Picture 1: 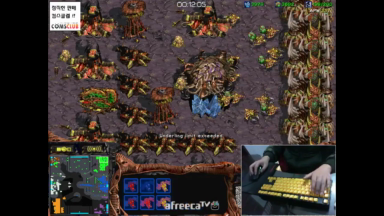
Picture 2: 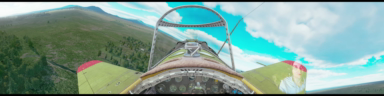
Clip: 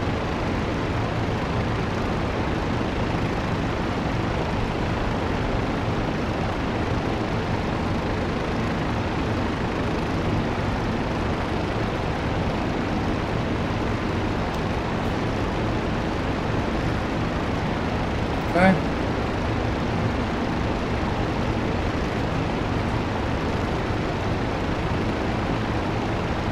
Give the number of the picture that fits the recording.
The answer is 2